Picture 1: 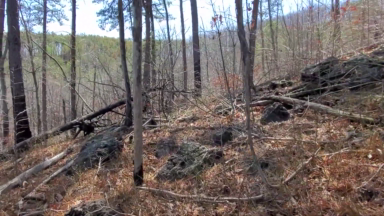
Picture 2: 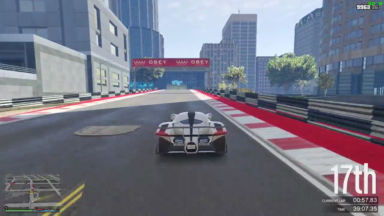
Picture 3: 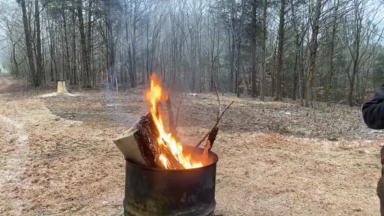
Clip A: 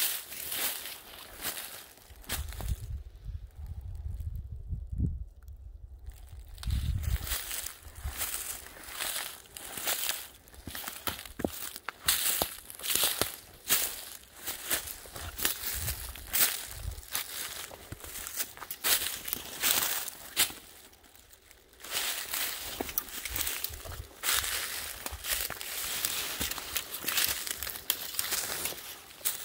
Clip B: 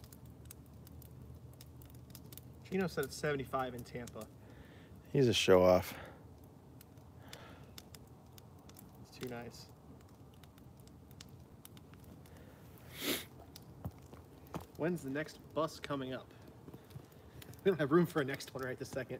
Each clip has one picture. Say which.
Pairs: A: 1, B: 3